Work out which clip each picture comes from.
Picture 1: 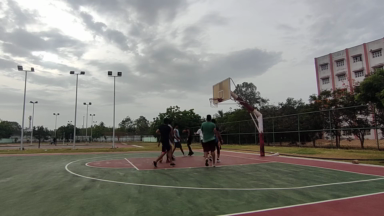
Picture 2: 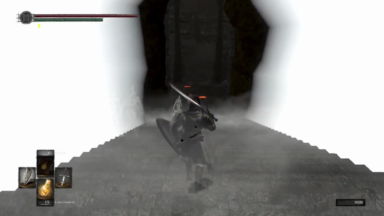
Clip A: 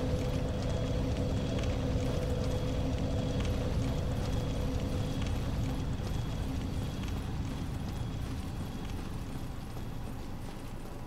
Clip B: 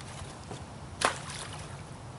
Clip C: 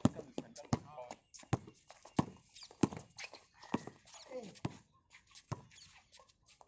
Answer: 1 C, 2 A